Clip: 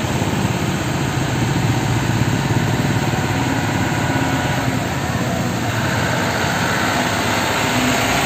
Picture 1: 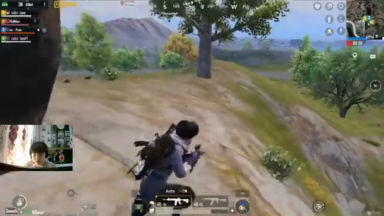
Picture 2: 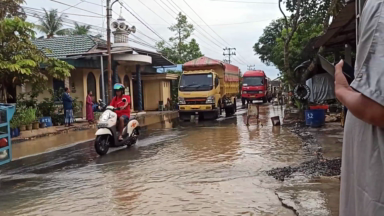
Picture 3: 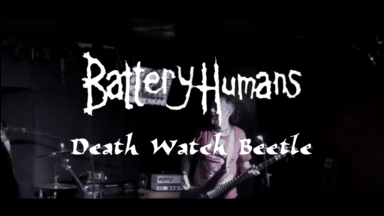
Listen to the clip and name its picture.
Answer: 2